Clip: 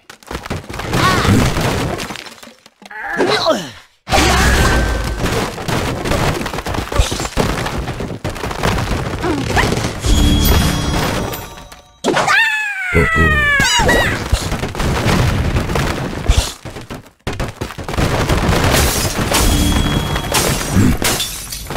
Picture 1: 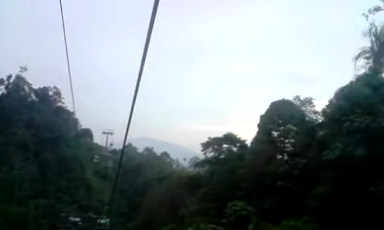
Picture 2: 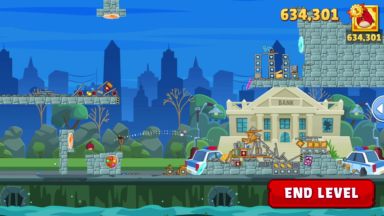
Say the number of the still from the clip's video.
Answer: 2